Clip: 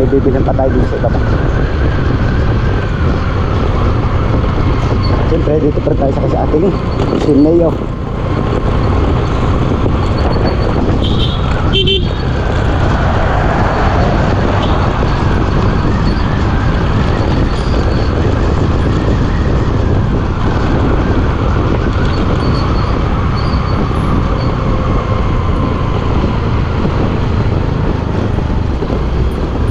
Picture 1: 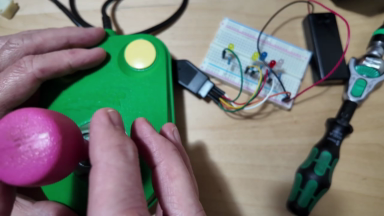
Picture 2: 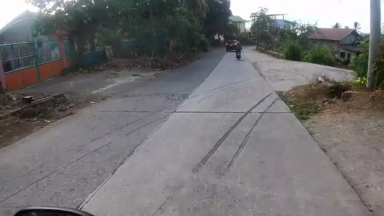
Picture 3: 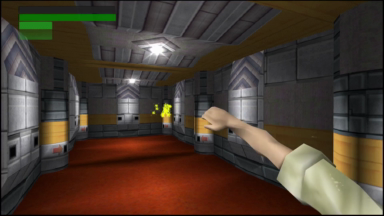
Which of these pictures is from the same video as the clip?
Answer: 2